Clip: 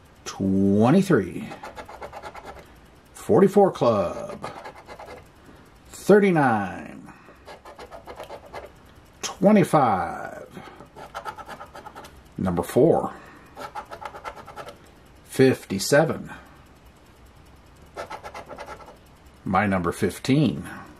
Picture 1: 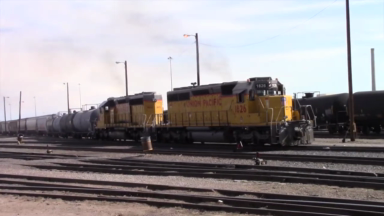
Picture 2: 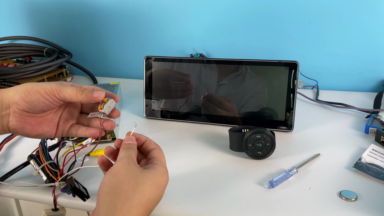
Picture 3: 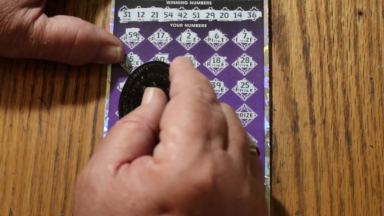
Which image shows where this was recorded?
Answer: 3